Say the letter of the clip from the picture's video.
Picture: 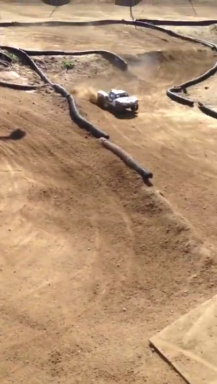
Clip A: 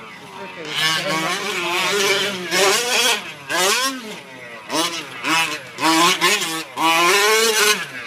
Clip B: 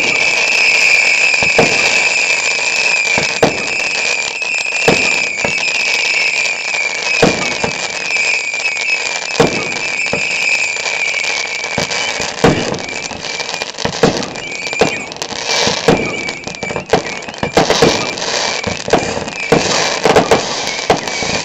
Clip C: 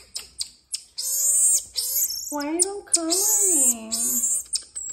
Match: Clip A